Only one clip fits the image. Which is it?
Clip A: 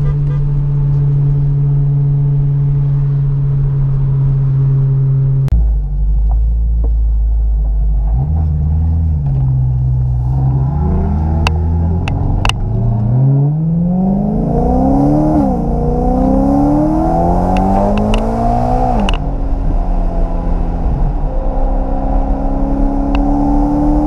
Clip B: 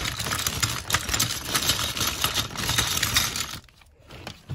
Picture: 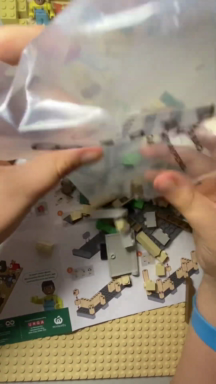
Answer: B